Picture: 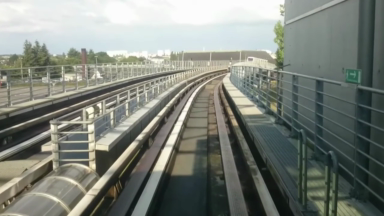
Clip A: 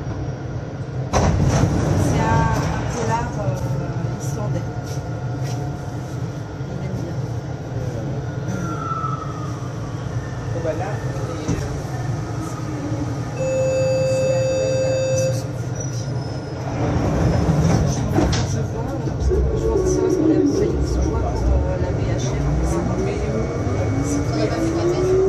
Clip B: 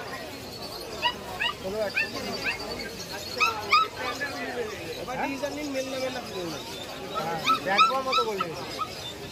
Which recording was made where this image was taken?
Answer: A